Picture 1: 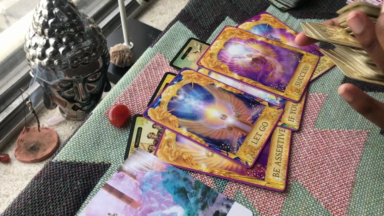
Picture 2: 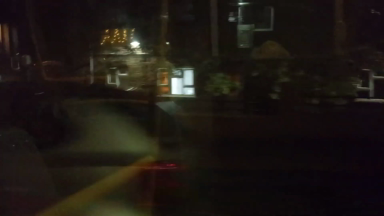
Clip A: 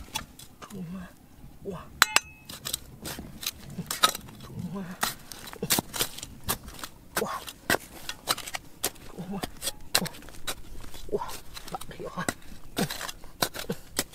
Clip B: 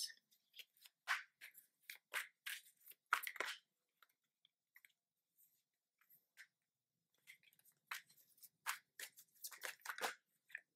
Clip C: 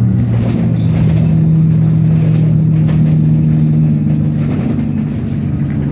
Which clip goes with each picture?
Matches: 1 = B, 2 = C